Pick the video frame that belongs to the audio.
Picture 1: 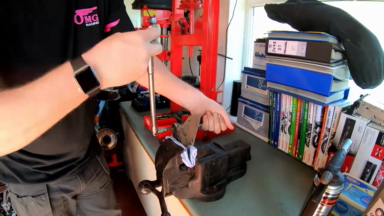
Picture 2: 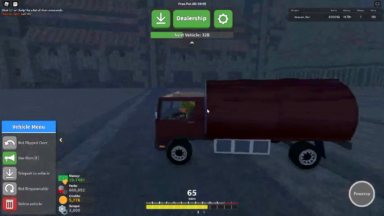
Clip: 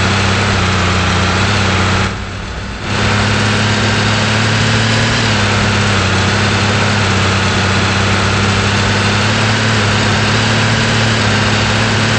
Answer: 2